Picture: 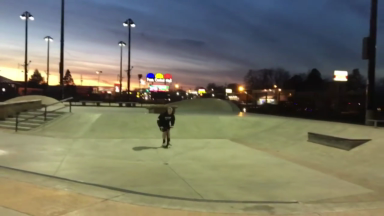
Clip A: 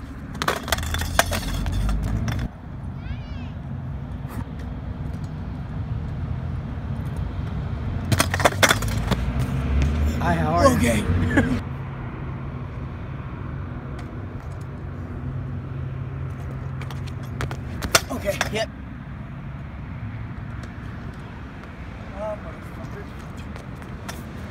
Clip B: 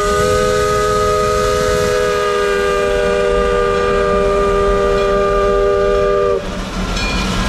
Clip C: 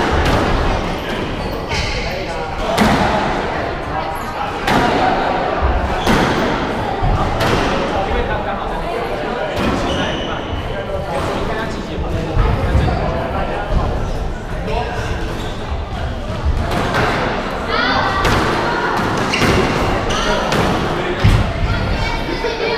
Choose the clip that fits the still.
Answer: A